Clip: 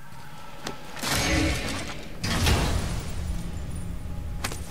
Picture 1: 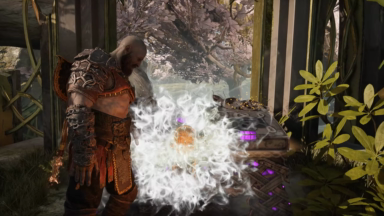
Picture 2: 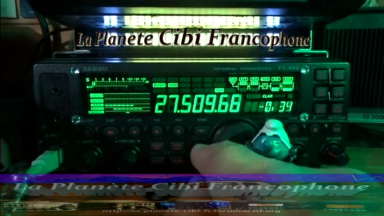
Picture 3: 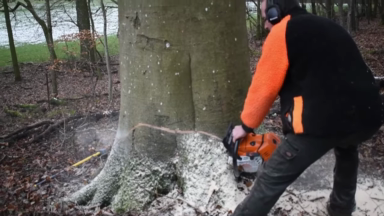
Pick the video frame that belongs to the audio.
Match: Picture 1